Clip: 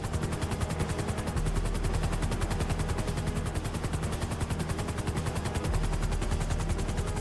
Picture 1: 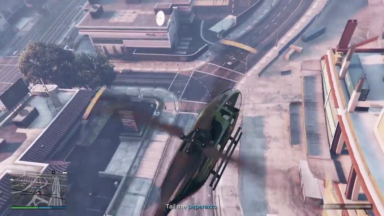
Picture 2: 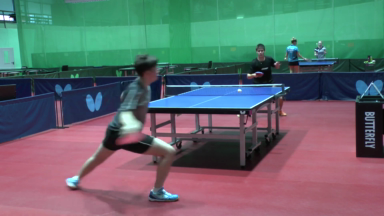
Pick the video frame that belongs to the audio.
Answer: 1